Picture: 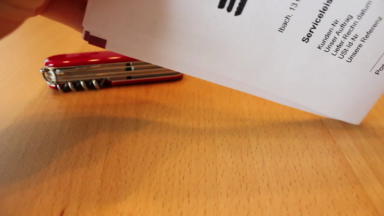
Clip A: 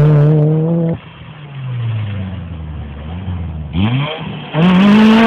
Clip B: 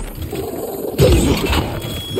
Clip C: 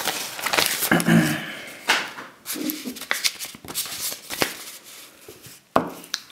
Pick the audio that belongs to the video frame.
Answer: C